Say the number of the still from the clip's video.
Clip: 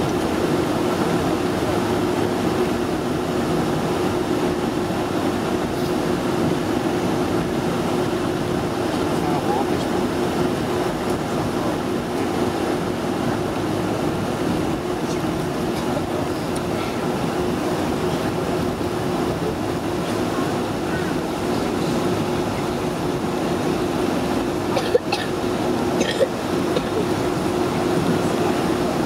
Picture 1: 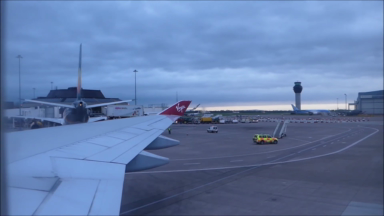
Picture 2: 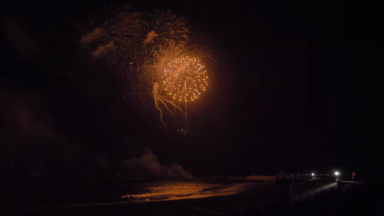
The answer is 1